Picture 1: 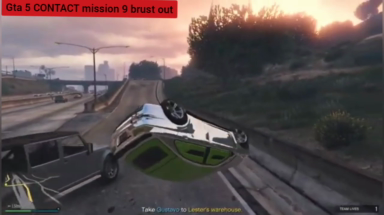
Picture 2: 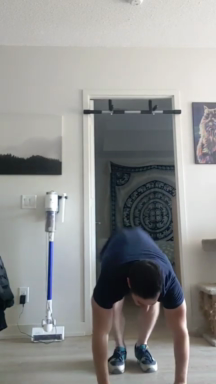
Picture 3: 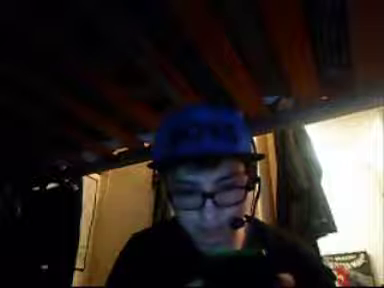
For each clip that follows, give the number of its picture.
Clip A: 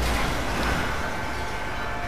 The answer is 1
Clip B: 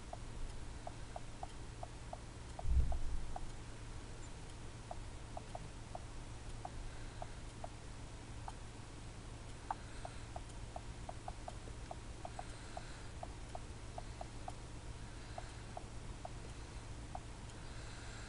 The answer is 3